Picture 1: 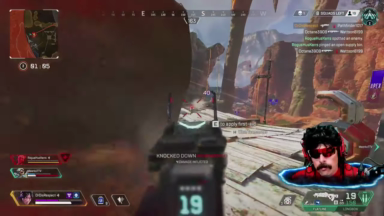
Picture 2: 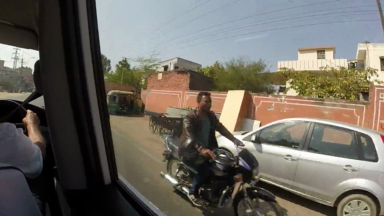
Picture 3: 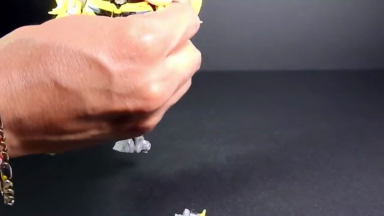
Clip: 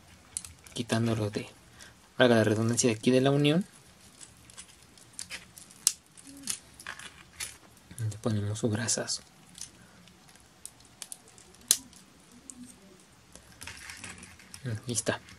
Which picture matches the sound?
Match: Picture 3